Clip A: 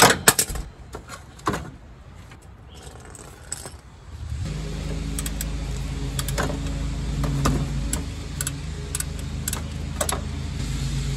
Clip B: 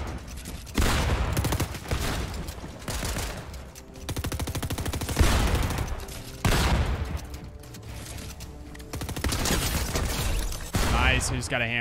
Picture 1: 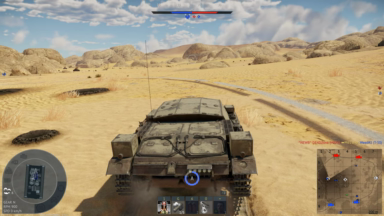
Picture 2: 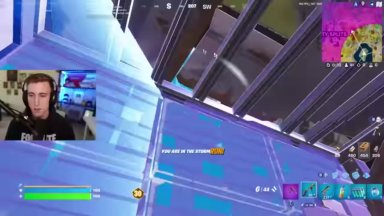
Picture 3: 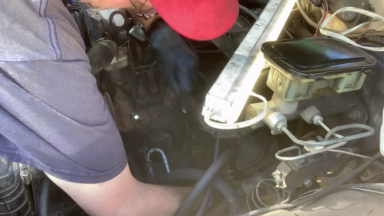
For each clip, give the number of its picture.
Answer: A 3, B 2